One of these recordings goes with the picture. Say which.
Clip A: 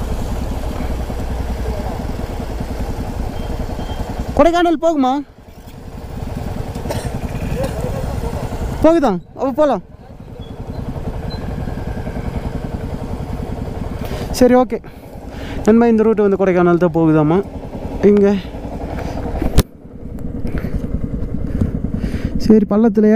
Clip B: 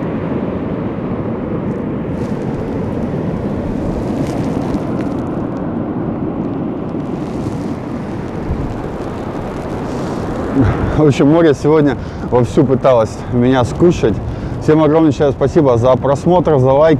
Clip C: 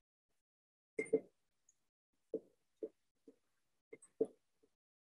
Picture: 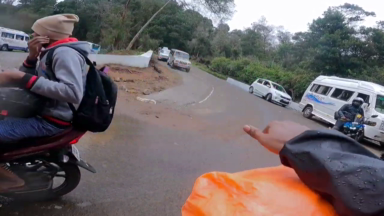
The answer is A